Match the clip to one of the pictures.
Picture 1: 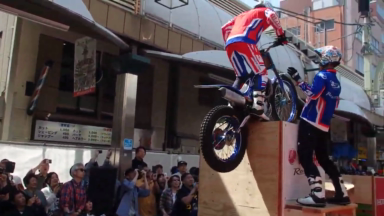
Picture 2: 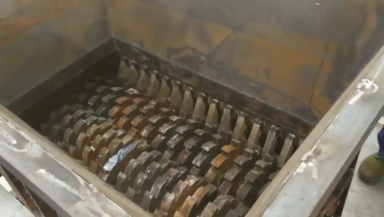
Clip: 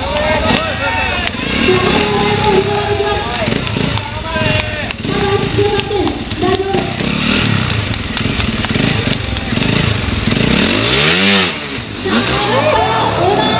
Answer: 1